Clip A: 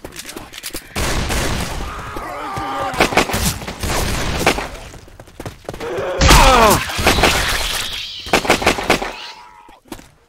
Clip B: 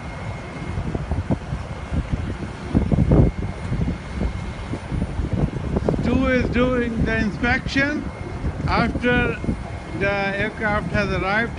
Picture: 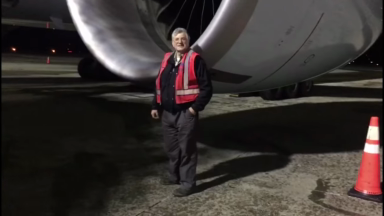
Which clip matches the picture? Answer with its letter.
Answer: B